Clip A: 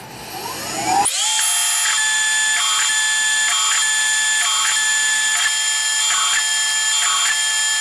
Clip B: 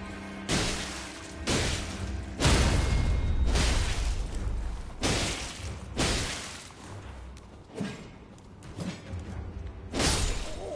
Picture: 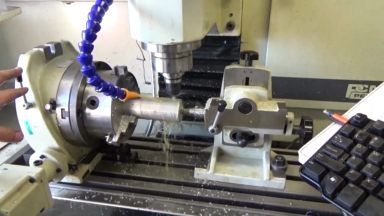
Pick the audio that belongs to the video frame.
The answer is A